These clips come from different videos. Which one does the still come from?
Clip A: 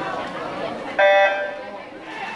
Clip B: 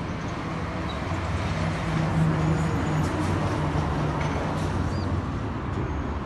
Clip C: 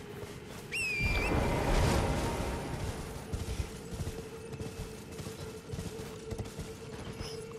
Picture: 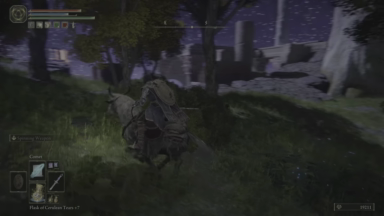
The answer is C